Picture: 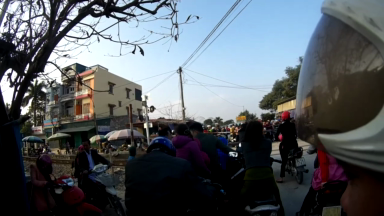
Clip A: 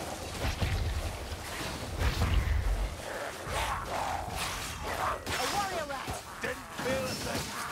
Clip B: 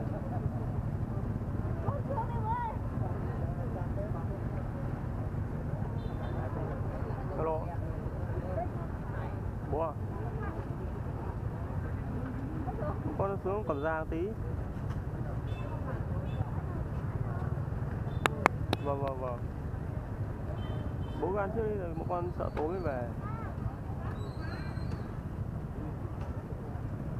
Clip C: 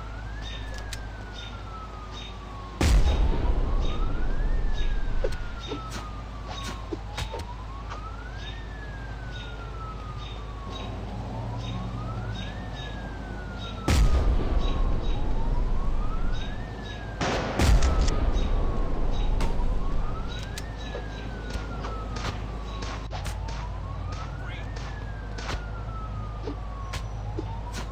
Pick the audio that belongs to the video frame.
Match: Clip B